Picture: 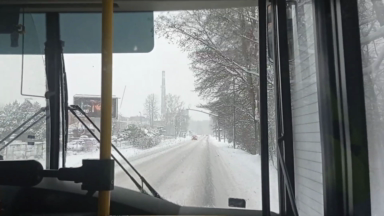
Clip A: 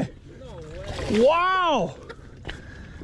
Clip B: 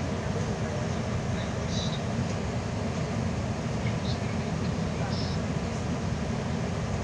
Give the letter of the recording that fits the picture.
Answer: B